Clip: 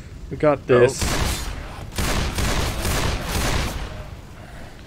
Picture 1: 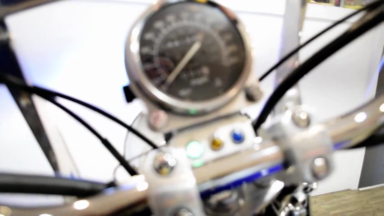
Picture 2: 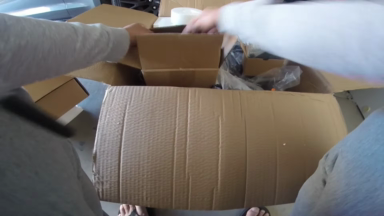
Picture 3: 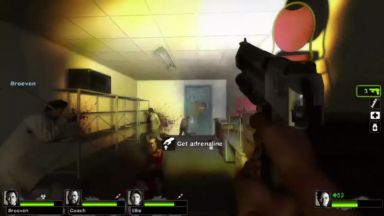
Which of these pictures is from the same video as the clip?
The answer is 3